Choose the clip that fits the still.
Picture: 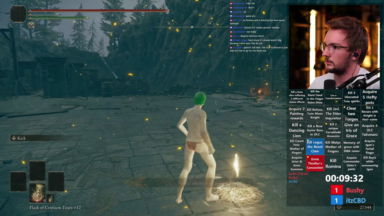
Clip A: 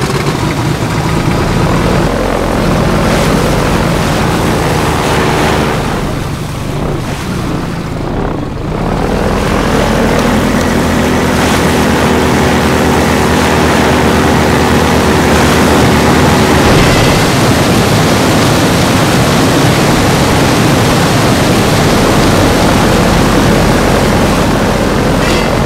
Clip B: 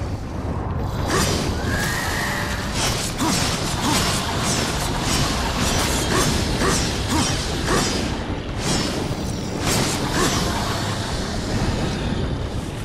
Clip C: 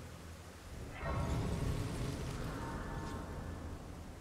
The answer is C